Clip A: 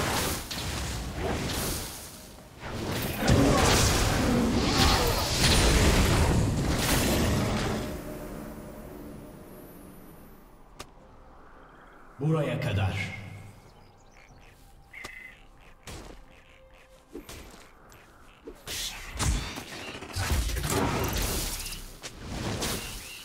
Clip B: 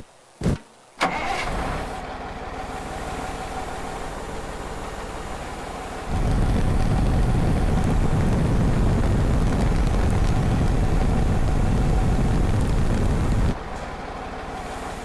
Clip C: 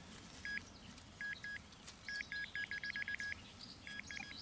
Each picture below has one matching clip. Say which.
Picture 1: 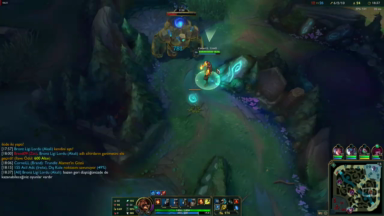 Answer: A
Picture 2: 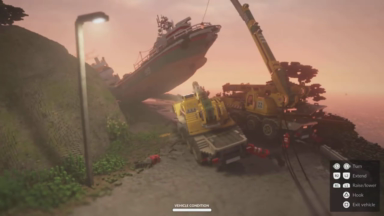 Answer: B